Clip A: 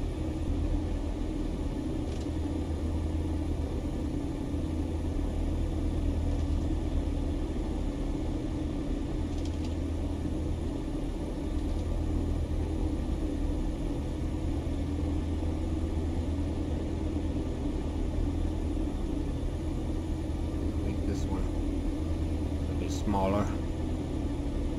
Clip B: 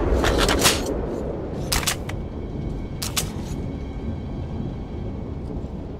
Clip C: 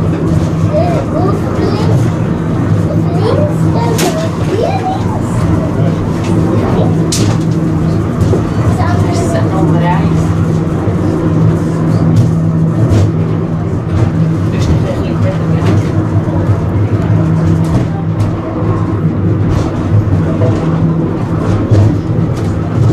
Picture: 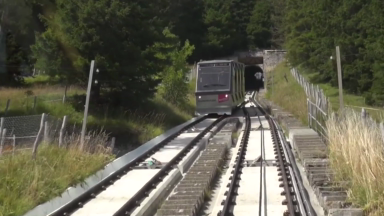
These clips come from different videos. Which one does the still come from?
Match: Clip C